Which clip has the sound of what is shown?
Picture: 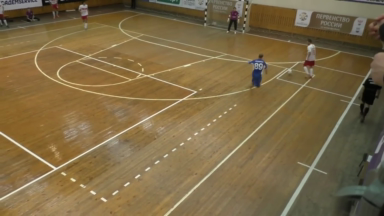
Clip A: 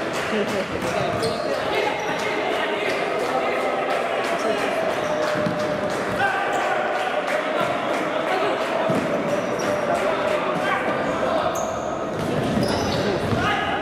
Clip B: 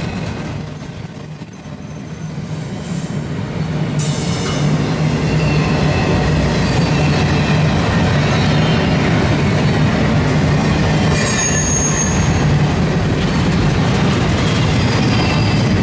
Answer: A